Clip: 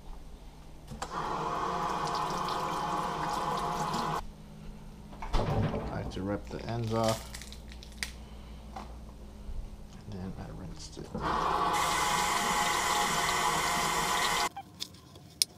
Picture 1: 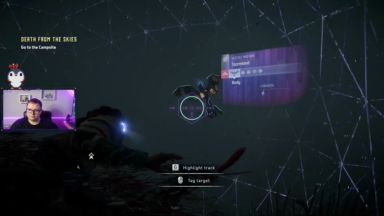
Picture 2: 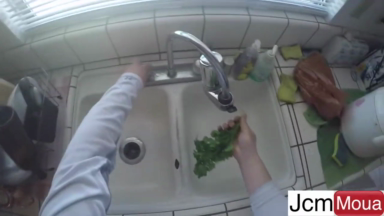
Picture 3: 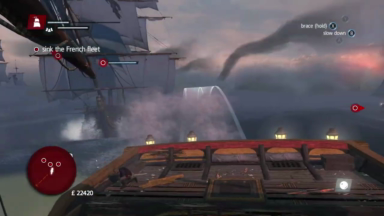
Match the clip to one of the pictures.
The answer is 2